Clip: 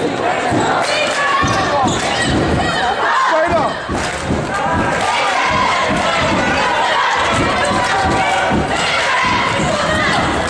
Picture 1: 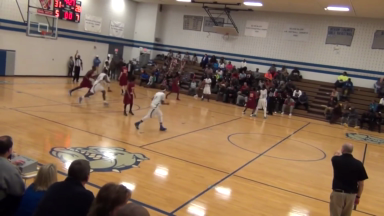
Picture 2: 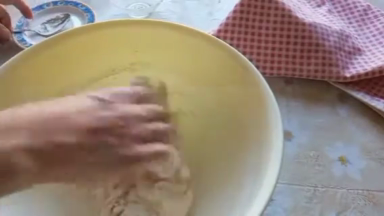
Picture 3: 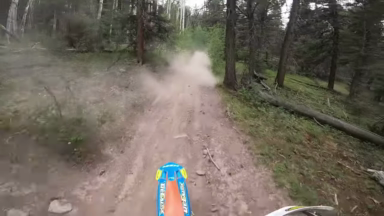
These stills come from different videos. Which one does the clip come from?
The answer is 1